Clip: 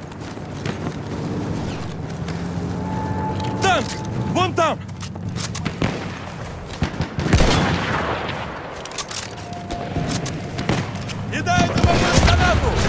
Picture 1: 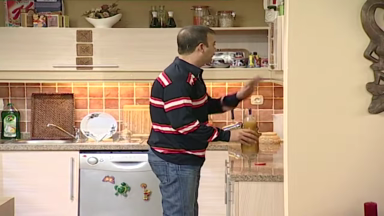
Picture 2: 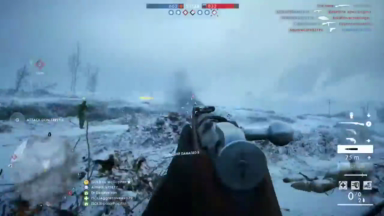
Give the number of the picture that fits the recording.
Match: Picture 2